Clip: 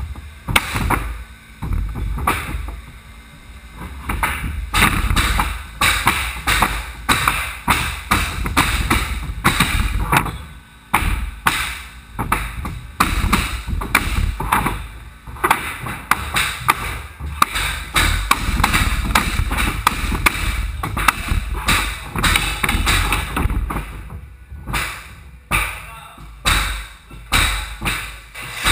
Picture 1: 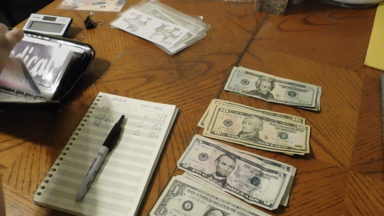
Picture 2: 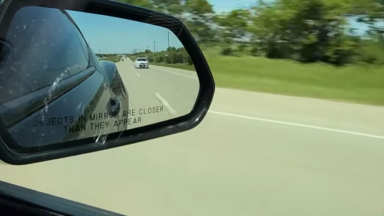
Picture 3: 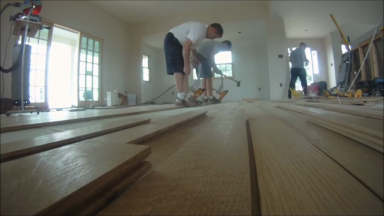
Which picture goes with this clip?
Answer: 3